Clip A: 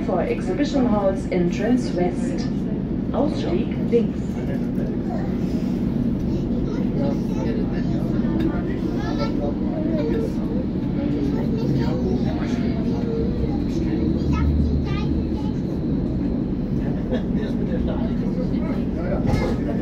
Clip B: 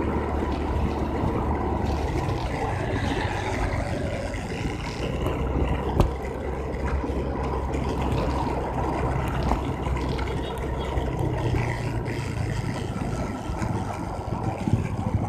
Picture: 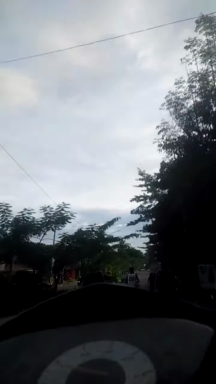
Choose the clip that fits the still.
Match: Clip B